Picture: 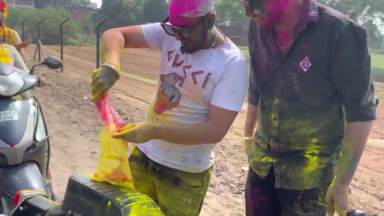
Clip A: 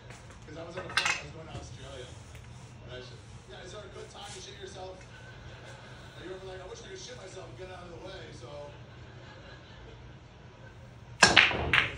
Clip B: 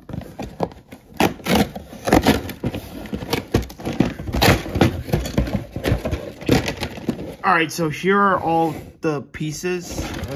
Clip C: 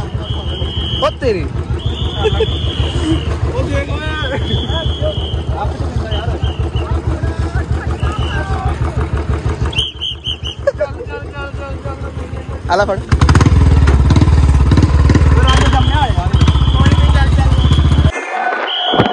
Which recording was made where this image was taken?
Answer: C